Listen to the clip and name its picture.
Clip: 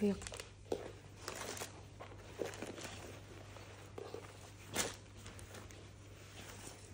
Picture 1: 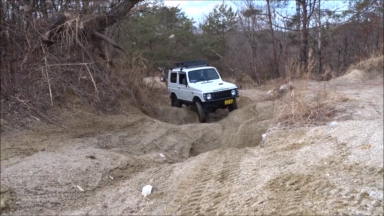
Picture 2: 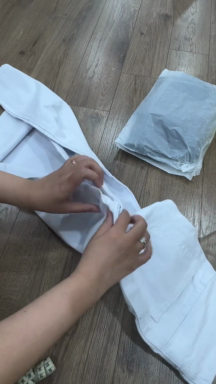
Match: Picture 2